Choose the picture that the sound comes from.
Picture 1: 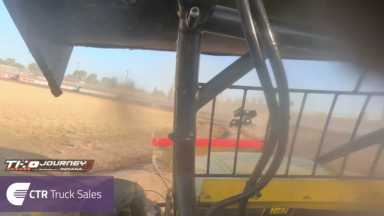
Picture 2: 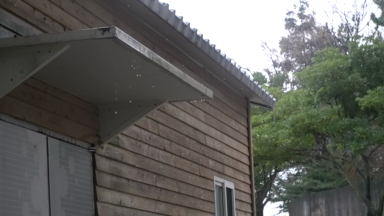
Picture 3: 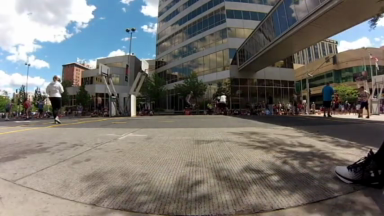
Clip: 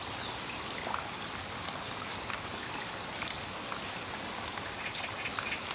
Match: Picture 2